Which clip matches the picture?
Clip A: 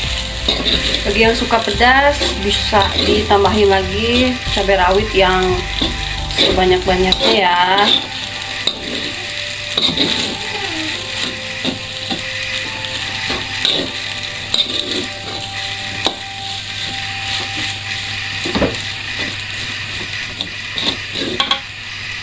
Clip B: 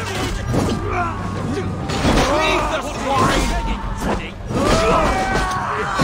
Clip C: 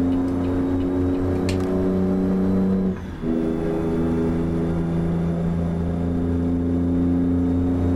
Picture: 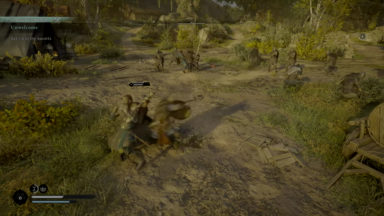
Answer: B